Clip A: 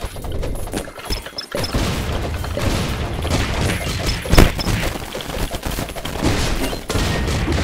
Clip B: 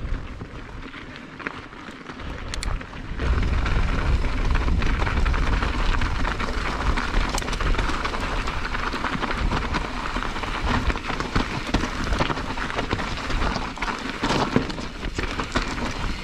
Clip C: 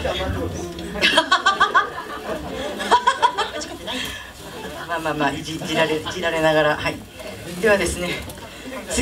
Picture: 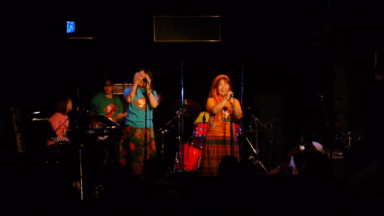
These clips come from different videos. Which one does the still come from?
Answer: C